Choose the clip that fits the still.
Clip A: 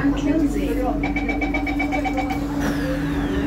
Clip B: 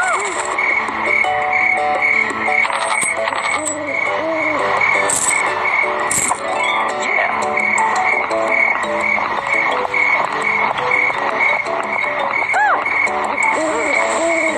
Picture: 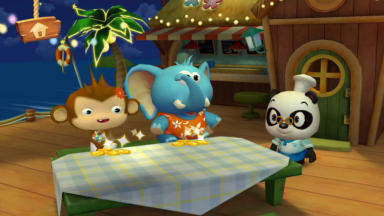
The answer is B